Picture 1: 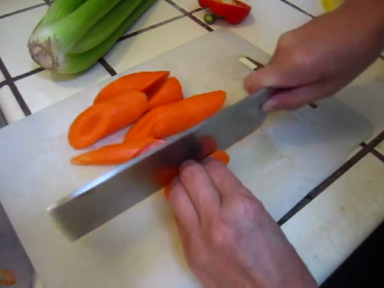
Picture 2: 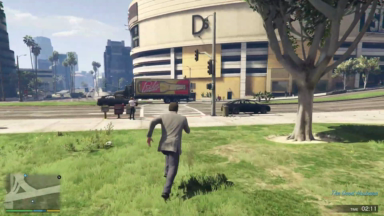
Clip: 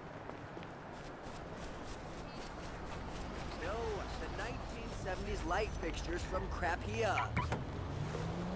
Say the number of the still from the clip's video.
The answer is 2